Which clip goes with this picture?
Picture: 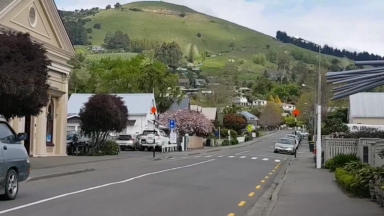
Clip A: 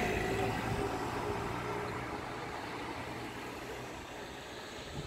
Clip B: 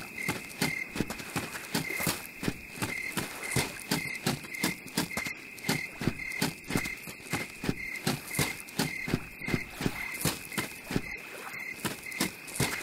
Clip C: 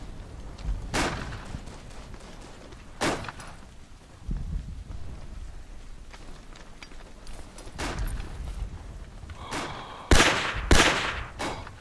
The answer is A